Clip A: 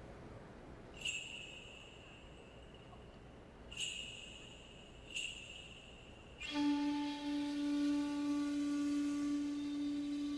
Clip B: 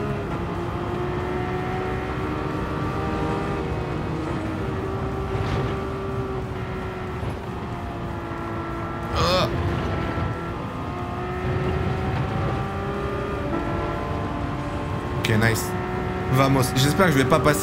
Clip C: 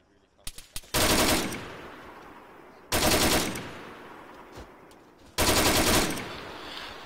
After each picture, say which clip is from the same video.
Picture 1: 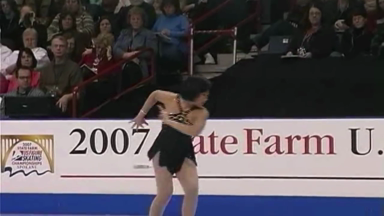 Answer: A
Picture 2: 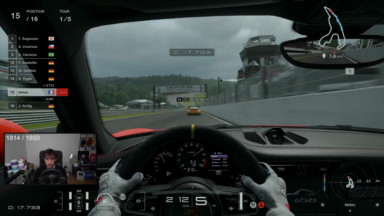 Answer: B